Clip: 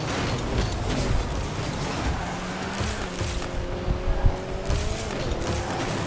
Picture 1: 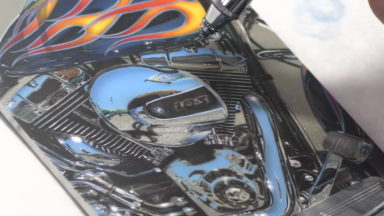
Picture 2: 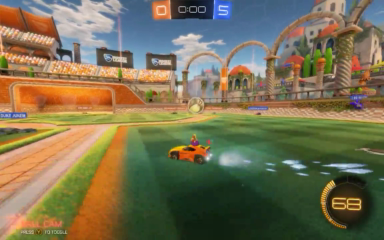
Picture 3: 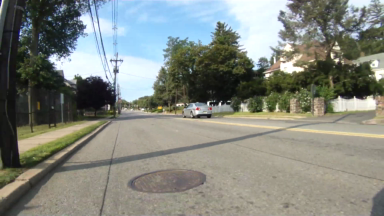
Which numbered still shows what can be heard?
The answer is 2